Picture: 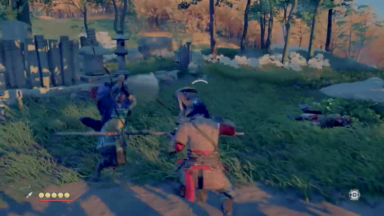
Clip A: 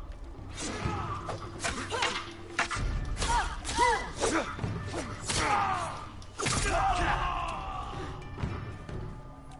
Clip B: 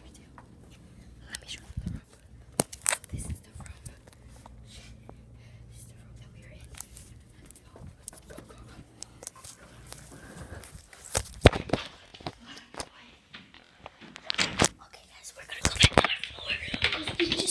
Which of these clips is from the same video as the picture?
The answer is A